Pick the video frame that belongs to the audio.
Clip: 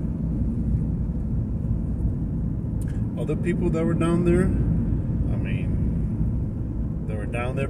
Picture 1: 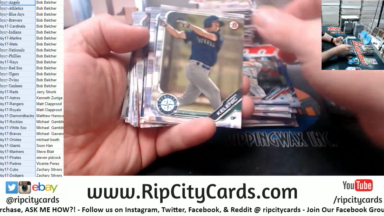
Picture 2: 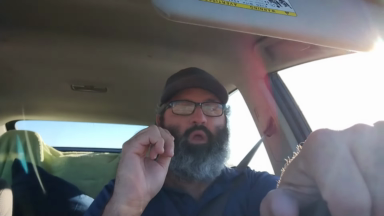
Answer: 2